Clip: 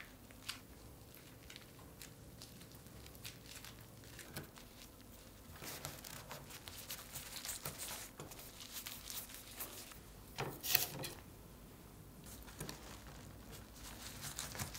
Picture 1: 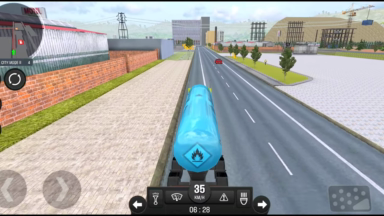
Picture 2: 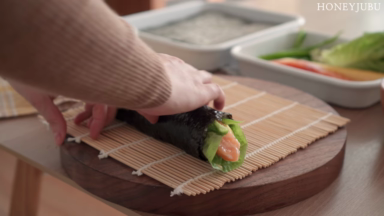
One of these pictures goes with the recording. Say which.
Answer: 2